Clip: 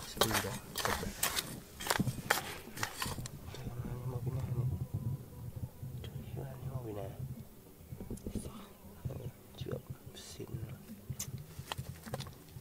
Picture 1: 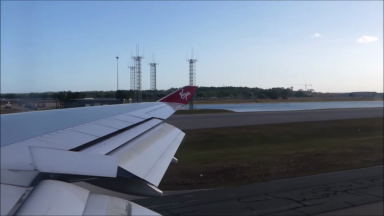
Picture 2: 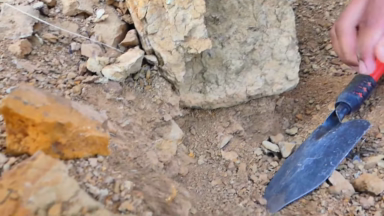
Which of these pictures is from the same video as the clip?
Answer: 2